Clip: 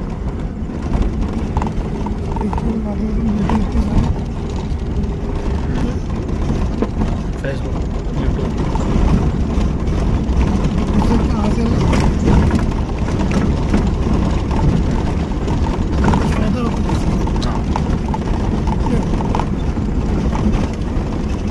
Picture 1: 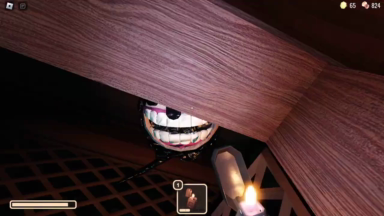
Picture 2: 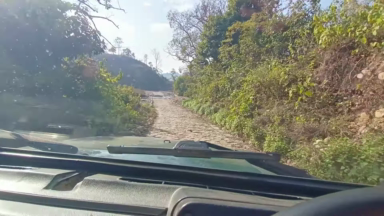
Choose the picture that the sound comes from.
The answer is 2